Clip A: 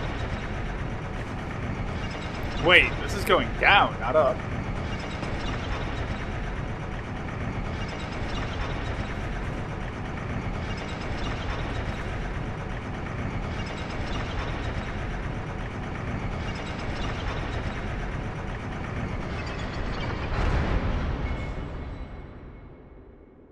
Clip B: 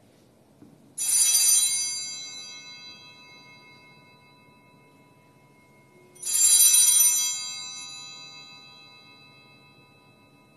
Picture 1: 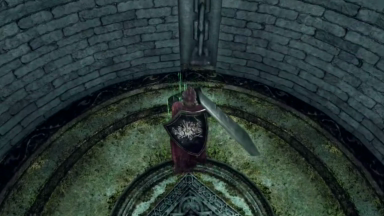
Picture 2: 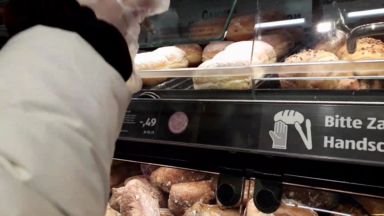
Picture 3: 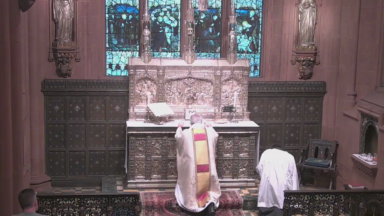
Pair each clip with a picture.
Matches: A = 1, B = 3